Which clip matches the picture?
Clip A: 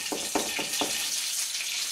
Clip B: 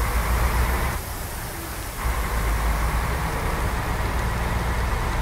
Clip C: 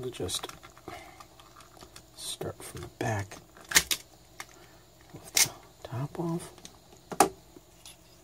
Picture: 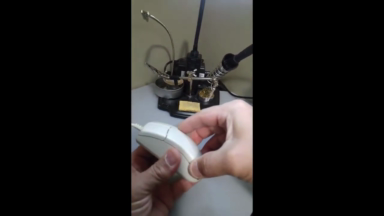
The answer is C